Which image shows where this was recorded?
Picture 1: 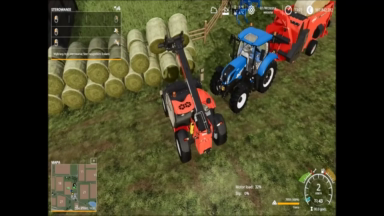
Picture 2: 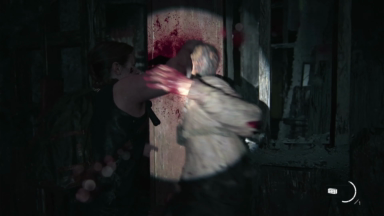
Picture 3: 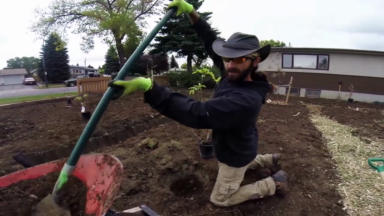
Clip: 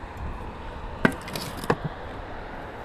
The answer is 3